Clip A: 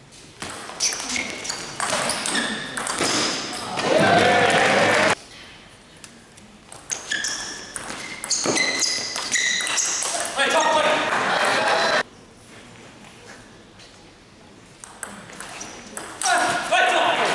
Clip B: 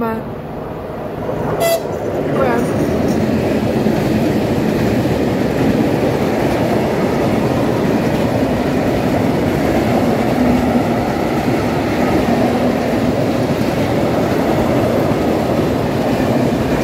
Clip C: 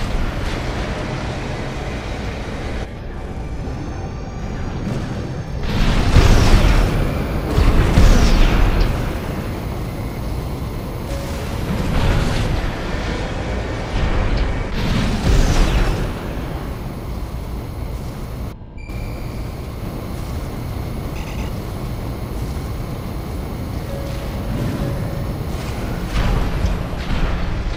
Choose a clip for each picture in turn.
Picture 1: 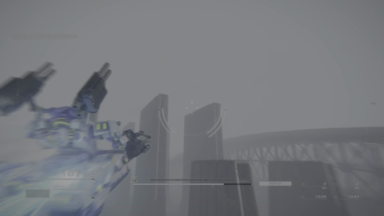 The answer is C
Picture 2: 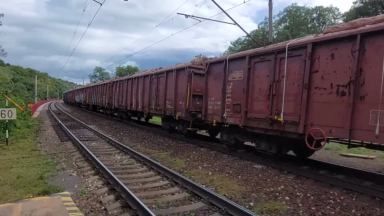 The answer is B